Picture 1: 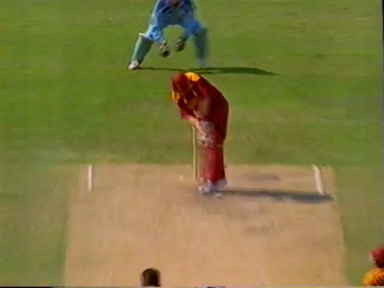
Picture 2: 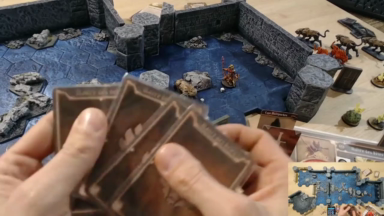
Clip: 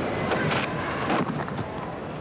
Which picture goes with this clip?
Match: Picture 1